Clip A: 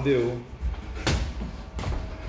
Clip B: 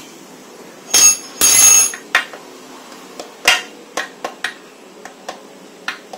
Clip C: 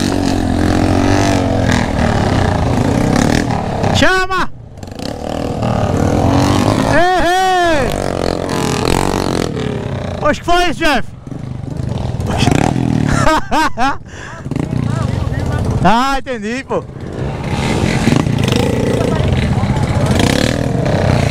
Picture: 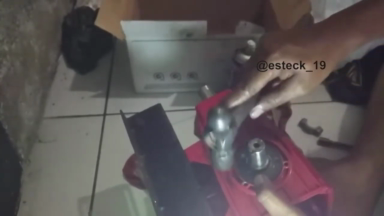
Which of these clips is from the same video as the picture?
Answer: B